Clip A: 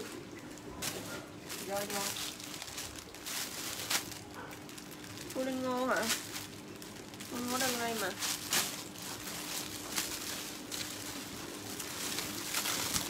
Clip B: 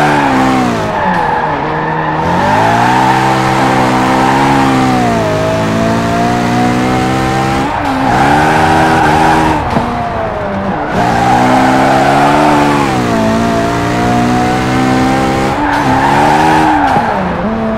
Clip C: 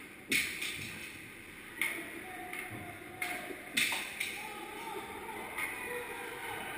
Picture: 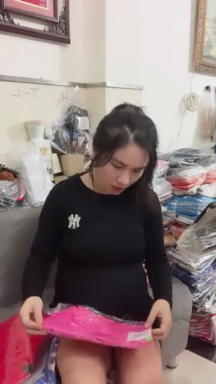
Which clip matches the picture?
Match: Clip A